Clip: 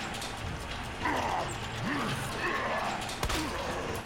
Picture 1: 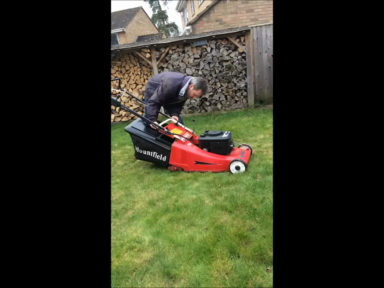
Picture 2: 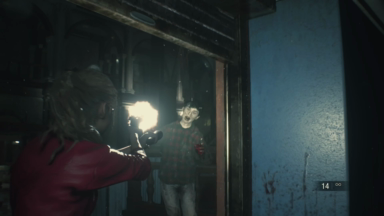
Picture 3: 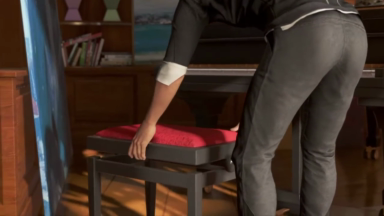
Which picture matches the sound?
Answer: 2